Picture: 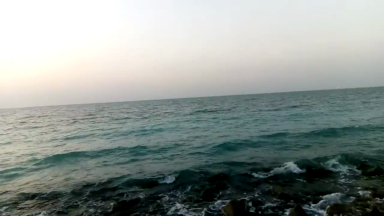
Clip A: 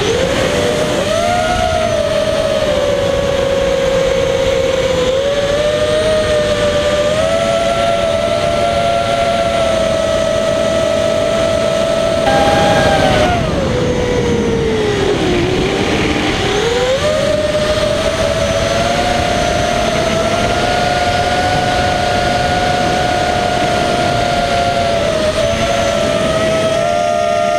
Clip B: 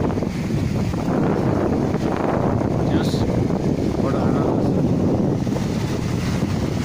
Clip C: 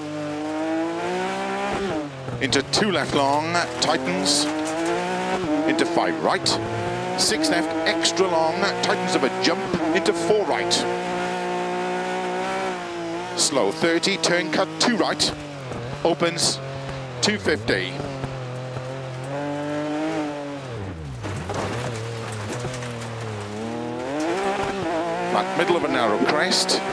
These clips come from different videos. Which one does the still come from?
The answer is B